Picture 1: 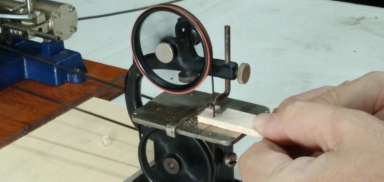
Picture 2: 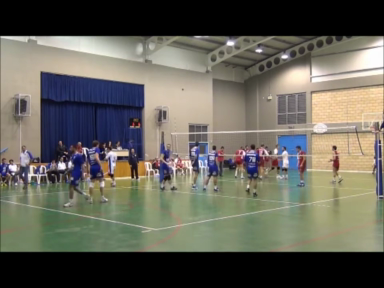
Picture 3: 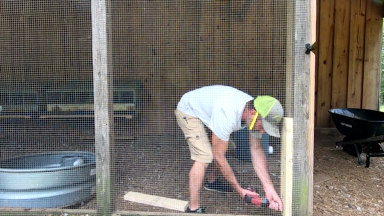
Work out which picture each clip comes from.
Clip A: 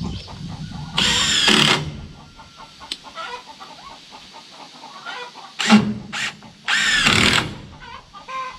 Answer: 3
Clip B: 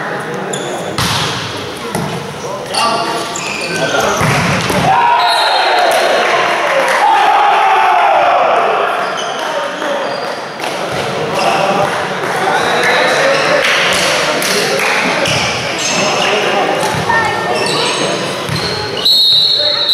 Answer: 2